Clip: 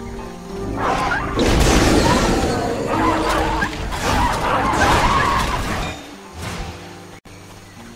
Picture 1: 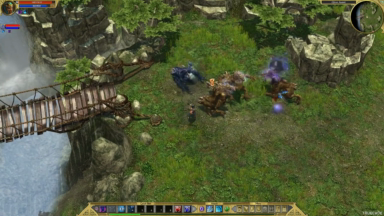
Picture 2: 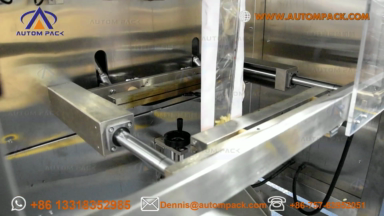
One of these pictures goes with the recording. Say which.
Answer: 1